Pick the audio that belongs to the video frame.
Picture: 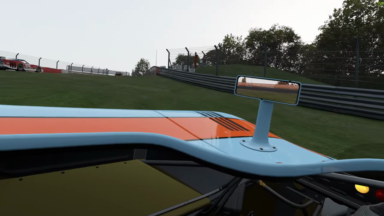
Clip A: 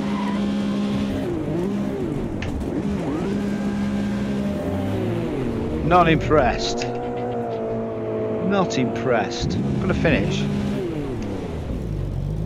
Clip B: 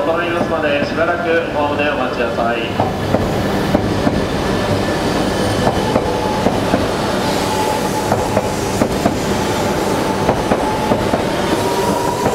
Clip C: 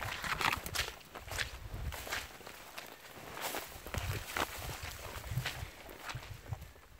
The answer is A